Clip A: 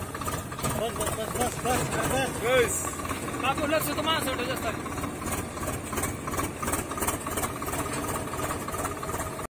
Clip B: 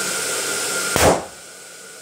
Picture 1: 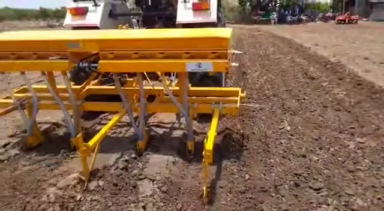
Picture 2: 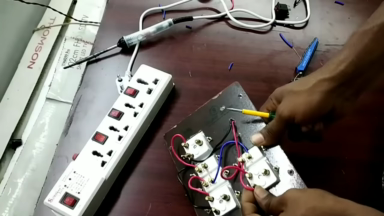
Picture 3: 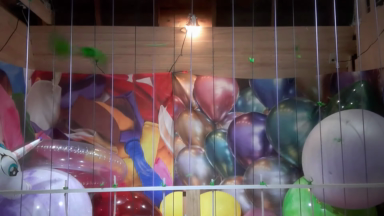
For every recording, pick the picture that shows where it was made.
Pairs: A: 1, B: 3